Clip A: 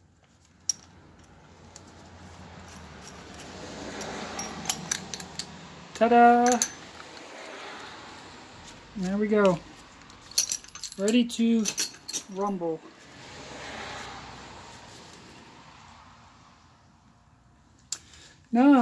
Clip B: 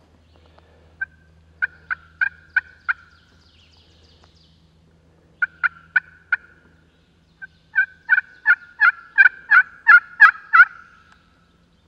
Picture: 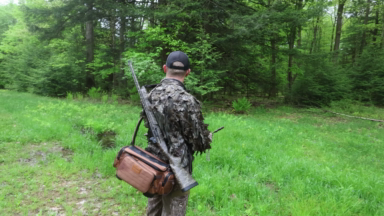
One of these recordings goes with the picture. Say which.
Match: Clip B